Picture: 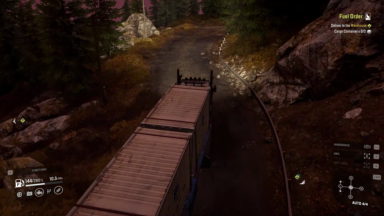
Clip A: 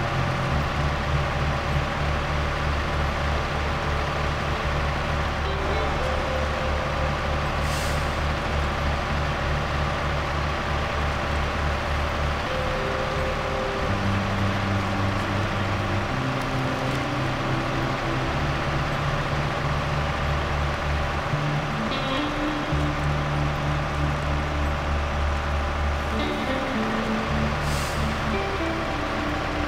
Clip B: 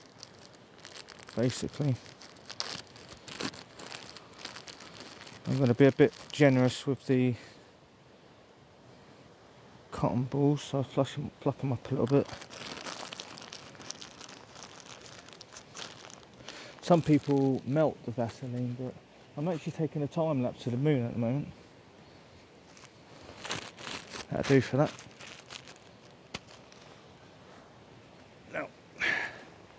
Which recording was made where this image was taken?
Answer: A